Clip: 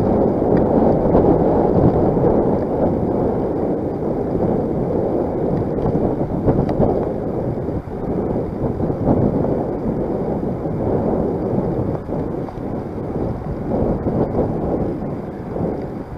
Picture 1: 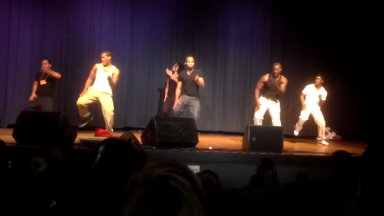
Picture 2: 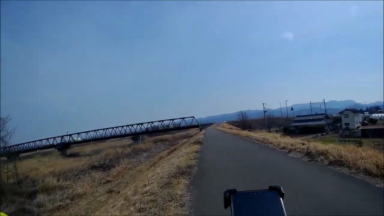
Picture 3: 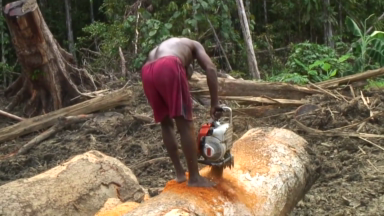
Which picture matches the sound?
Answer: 2